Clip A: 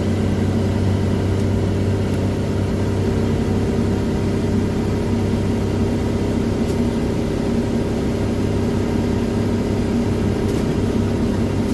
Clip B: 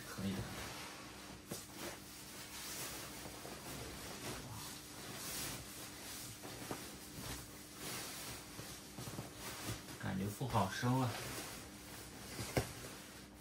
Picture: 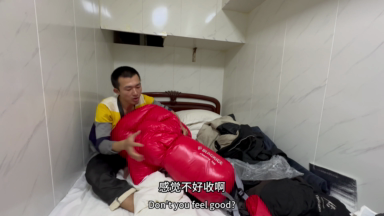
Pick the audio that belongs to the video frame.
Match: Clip B